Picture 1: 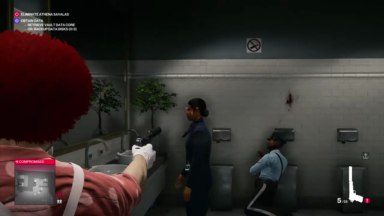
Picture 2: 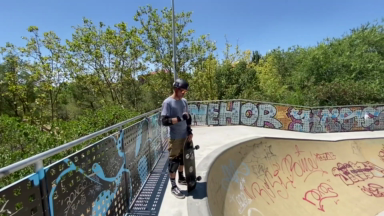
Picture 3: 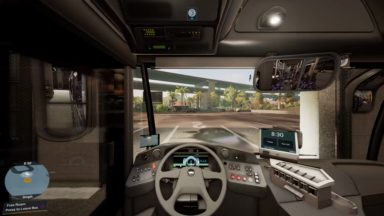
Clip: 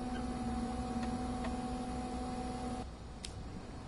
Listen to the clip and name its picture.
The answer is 3